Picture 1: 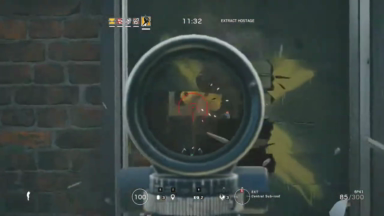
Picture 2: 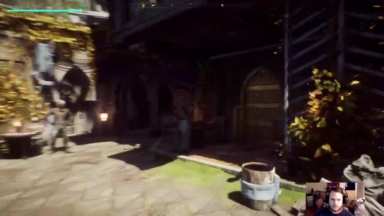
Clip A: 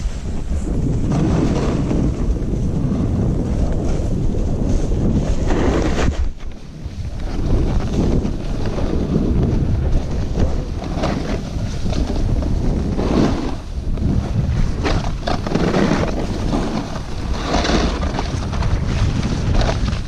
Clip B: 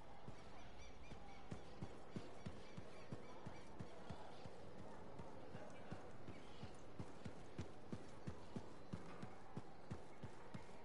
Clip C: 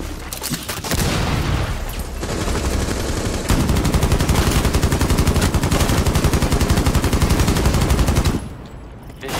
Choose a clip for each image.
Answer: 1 C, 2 B